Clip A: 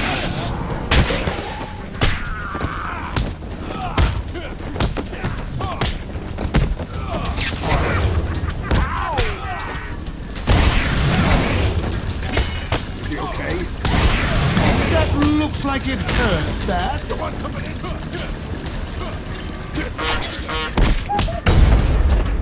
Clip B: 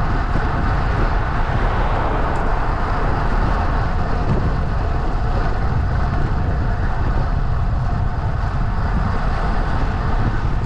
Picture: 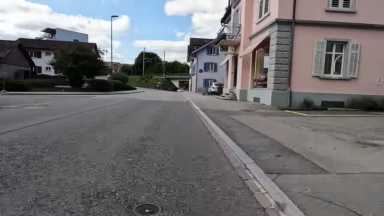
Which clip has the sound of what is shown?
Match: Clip B